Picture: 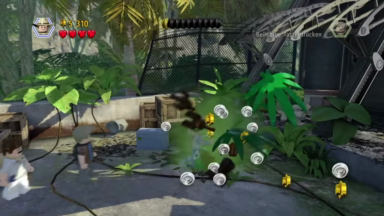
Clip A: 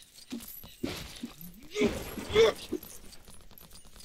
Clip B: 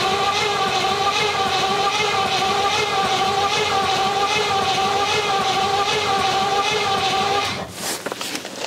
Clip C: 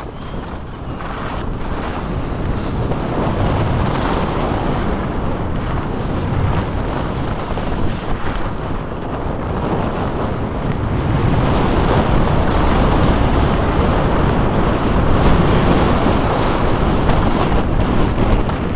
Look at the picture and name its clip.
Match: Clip A